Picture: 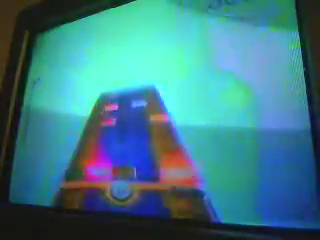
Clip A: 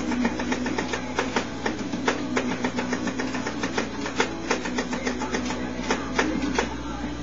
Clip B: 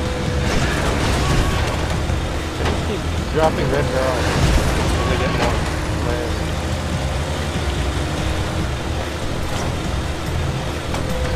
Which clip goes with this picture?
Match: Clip A